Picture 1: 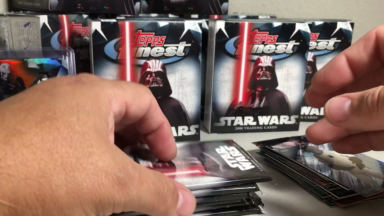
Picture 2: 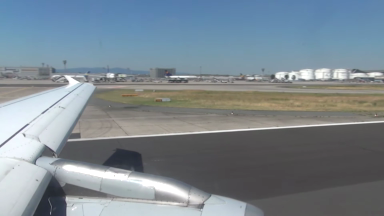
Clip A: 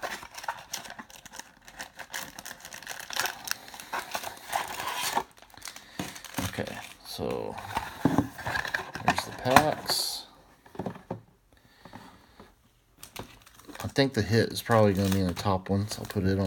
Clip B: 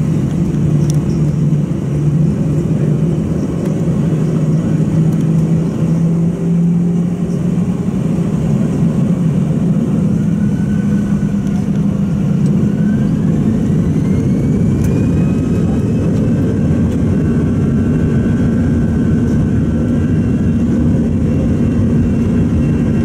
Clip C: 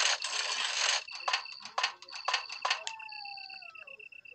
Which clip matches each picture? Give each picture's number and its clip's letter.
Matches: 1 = A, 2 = B